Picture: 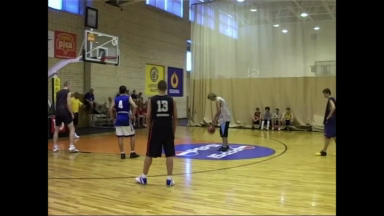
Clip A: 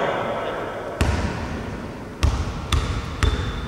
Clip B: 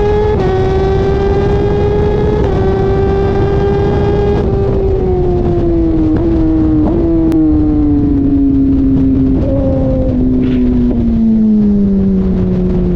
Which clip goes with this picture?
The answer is A